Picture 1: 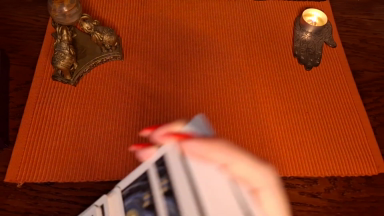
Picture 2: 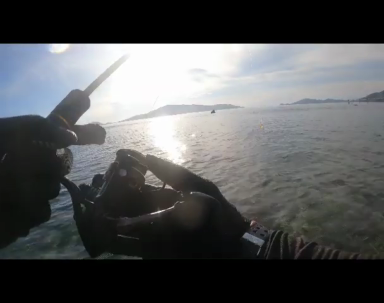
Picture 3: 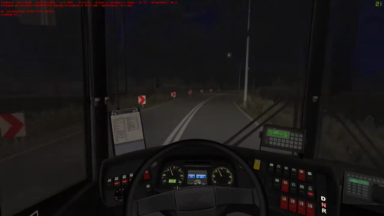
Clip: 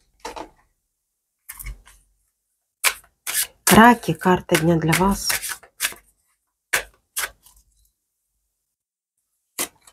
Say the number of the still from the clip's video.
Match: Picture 1